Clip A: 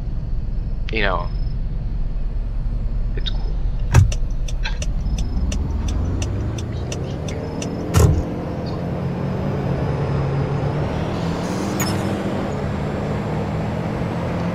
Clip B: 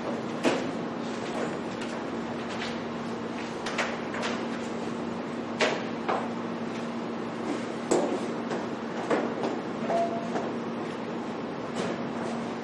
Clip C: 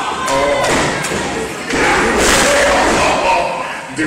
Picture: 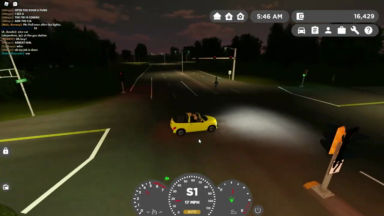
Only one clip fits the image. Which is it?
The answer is A